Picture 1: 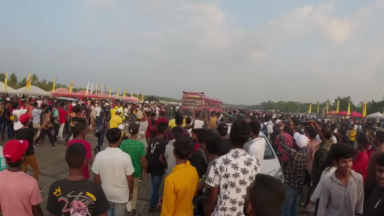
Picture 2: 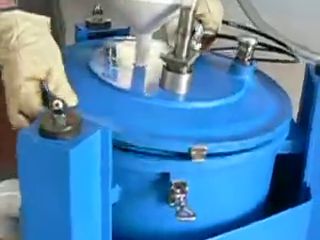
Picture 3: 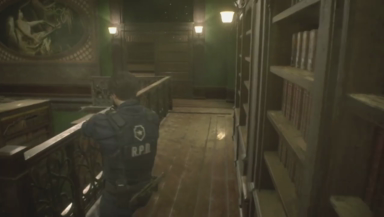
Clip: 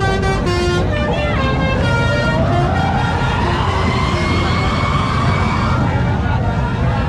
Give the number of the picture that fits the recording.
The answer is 1